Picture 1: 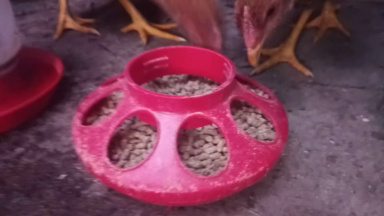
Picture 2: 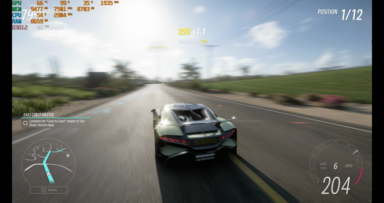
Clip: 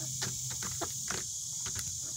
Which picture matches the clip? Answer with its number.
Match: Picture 1